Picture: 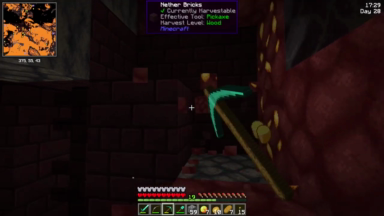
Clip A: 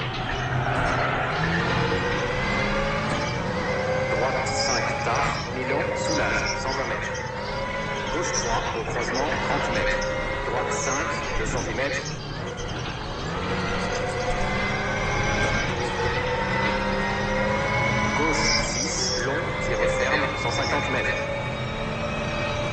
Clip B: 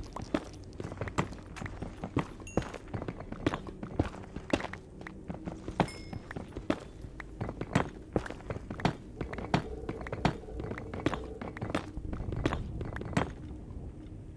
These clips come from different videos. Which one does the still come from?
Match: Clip B